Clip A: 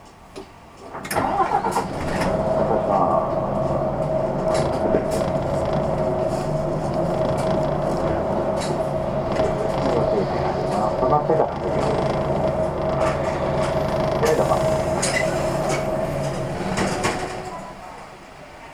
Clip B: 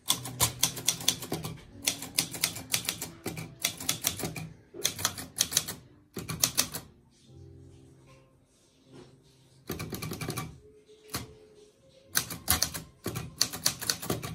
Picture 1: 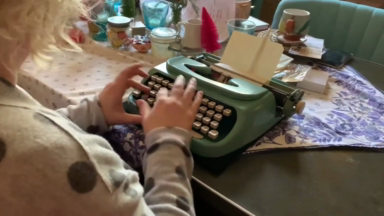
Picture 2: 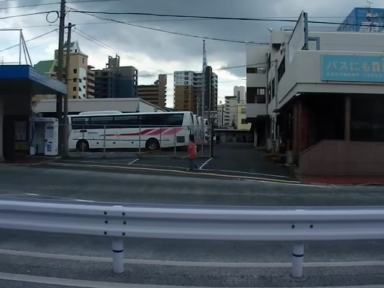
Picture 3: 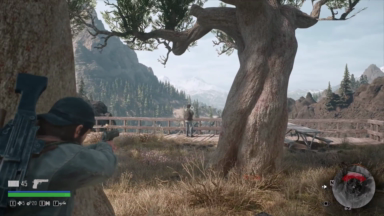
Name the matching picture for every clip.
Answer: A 2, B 1